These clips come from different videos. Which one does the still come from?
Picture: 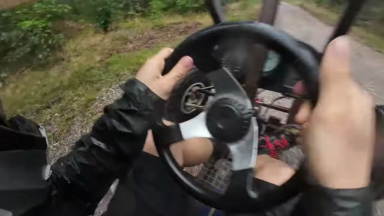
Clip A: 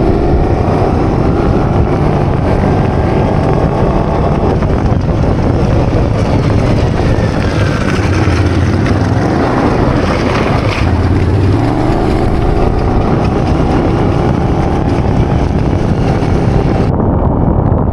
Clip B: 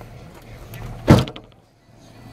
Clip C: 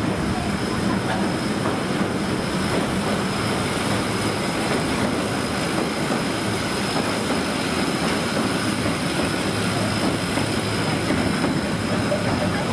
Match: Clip A